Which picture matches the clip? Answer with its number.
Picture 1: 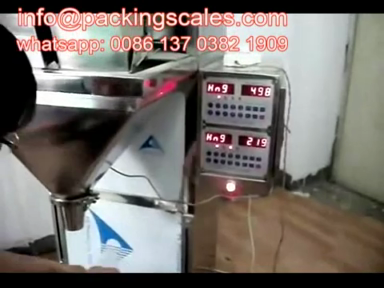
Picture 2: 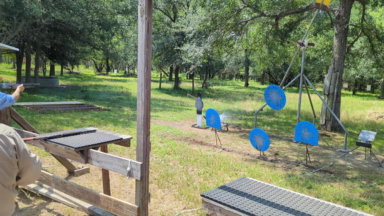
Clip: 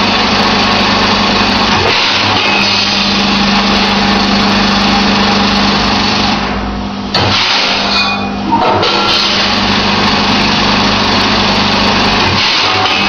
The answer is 1